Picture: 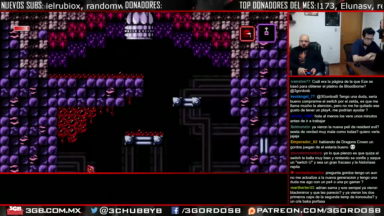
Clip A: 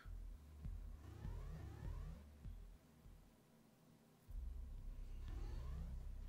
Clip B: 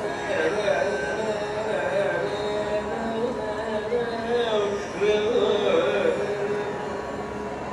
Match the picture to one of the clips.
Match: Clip A